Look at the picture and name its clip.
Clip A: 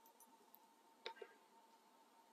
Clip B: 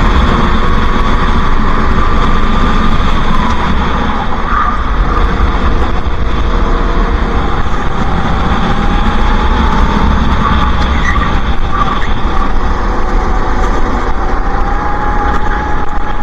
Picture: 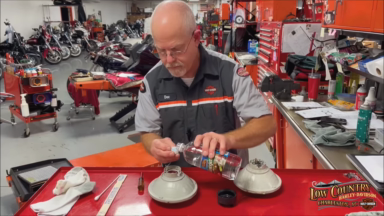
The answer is A